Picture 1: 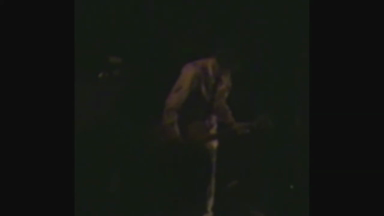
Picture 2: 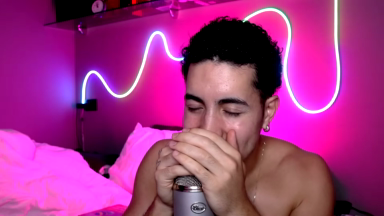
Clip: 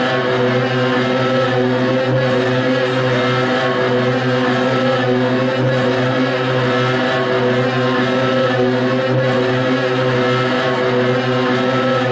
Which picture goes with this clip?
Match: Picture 1